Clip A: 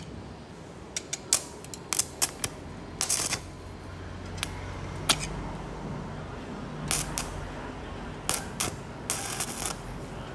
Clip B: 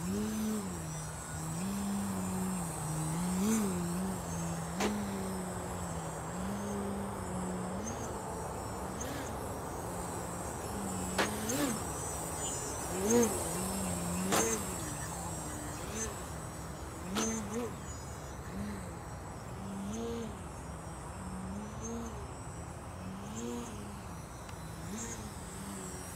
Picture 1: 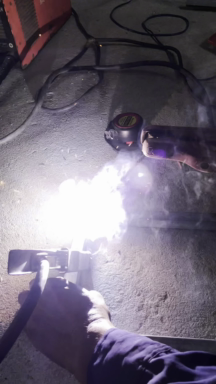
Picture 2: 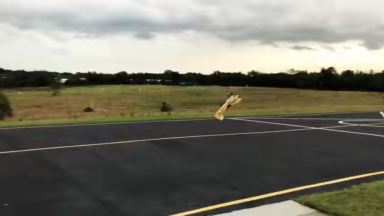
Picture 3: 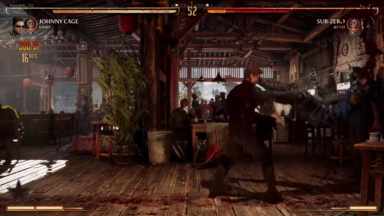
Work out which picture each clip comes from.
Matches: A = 1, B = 2